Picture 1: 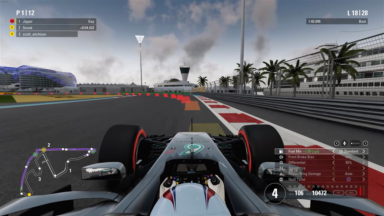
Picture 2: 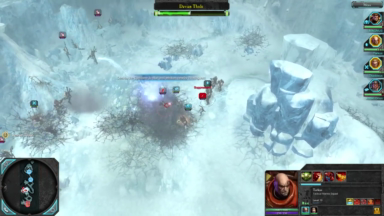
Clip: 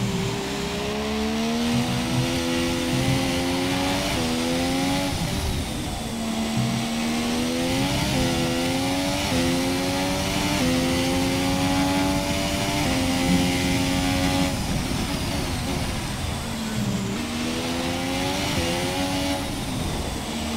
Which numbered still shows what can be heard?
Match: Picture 1